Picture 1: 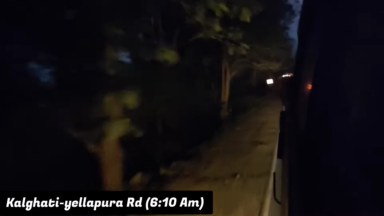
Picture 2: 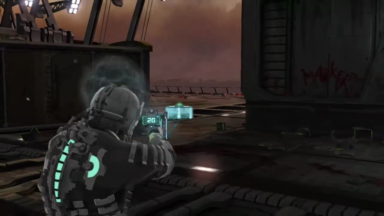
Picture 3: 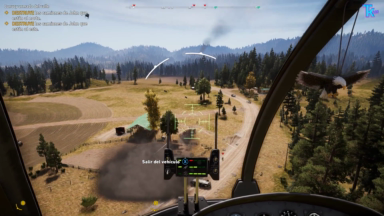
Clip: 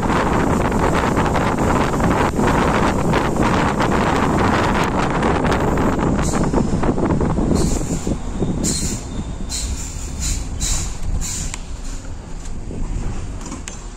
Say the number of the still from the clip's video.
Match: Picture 1